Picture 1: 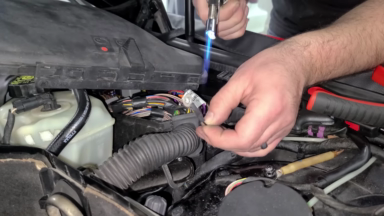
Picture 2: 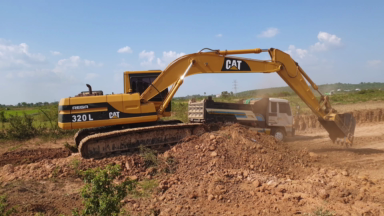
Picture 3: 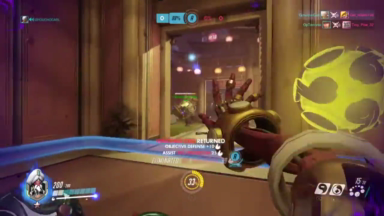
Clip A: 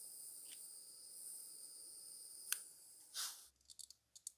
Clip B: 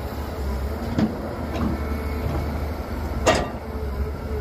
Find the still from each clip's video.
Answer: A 1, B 2